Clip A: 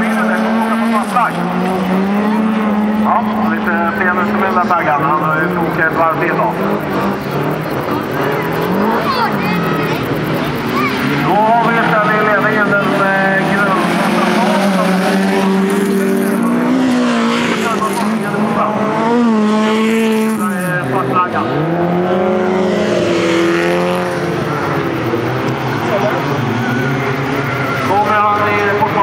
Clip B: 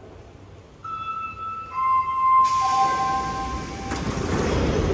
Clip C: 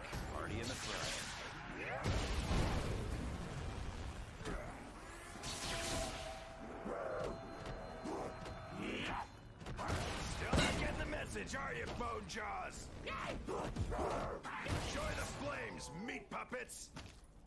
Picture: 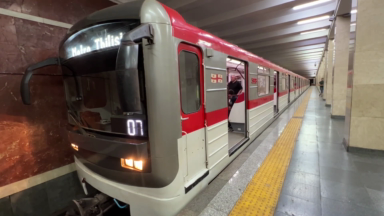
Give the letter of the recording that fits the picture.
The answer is B